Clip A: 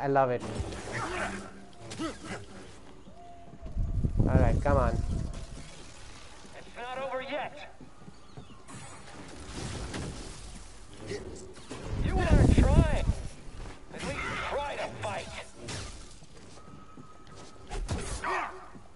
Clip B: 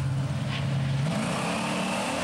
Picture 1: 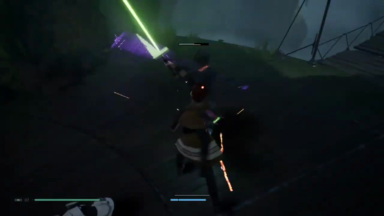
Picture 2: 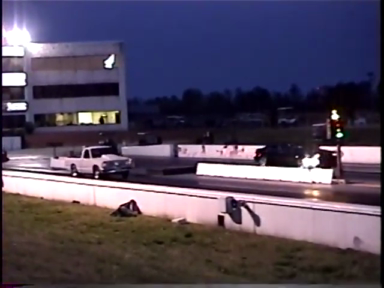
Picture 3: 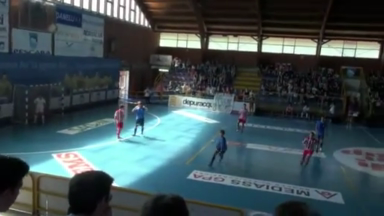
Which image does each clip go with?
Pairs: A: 1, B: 2